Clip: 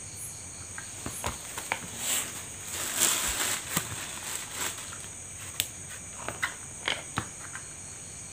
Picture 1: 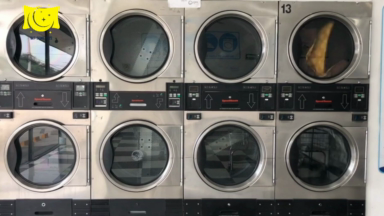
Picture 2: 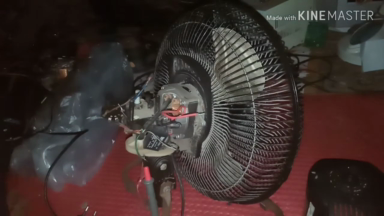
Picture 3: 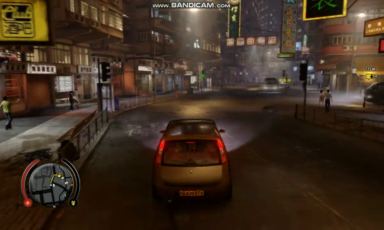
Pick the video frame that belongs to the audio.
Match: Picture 2